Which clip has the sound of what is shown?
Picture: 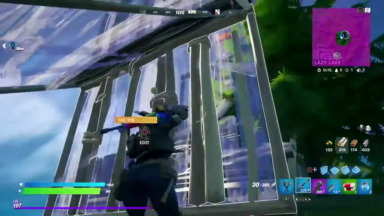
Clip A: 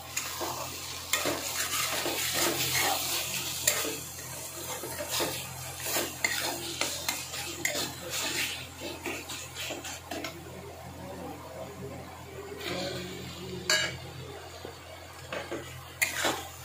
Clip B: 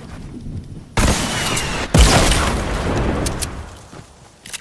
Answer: B